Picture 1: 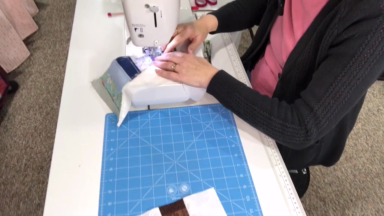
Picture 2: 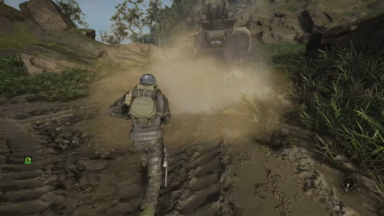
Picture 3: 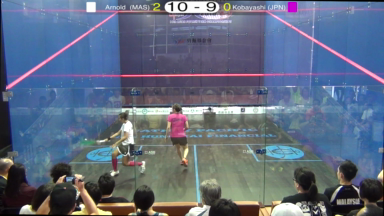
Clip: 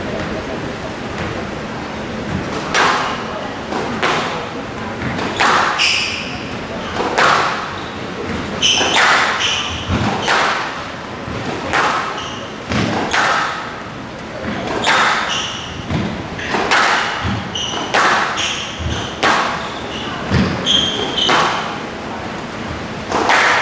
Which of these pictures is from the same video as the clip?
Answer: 3